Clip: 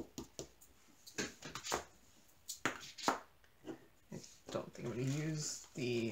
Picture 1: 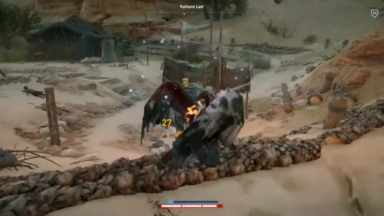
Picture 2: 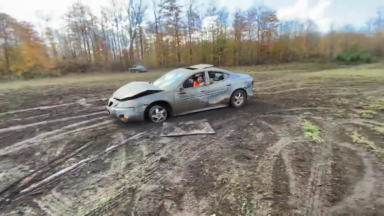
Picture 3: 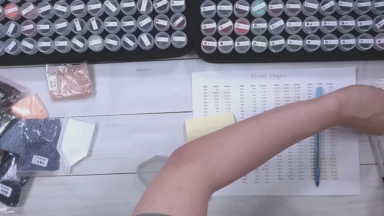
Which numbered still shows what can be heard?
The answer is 3